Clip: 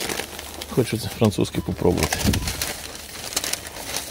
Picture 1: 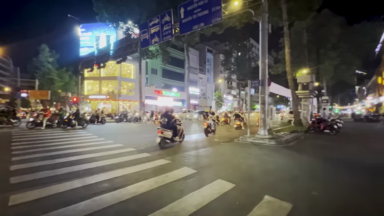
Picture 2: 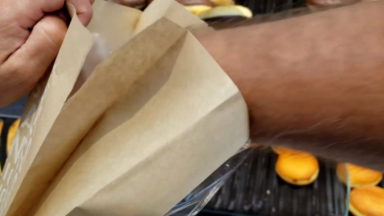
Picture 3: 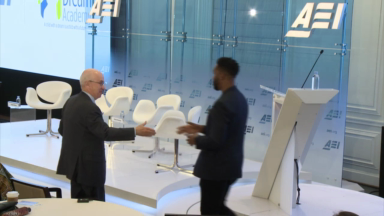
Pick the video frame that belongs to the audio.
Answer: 2